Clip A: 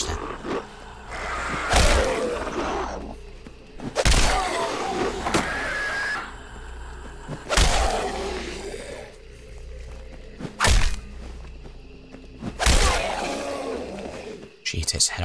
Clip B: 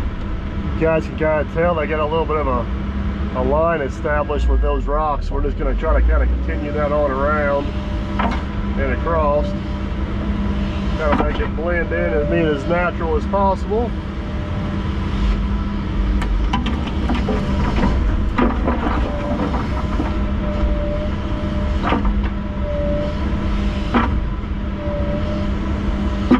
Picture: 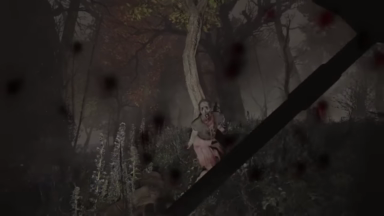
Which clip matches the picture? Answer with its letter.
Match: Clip A